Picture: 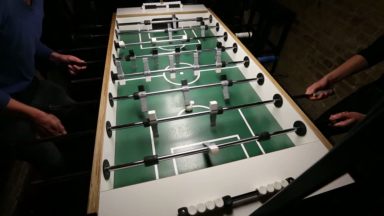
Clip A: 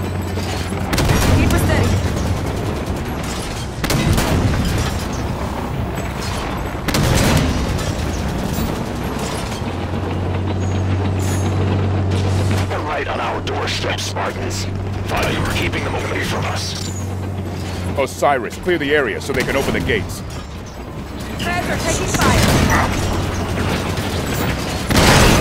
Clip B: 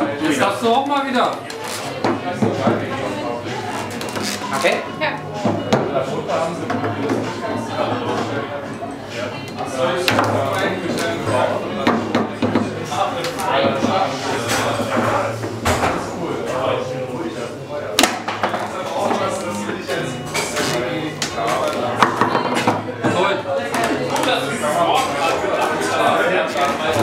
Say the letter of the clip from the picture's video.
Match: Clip B